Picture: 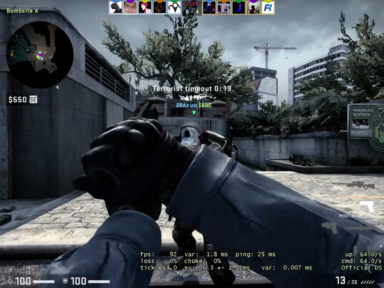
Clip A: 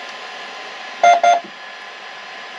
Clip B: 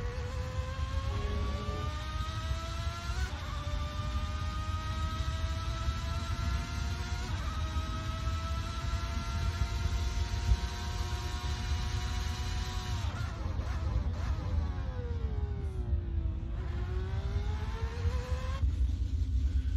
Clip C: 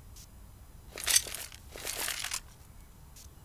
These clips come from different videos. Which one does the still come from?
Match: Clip C